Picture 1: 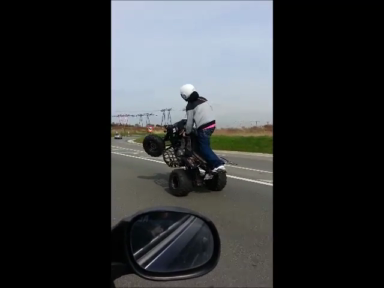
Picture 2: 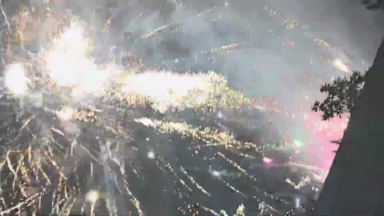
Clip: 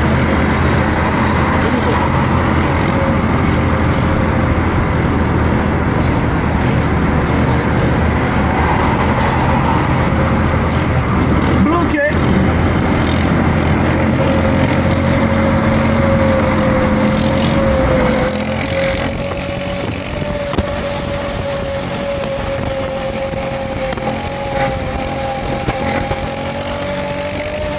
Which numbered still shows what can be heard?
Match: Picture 1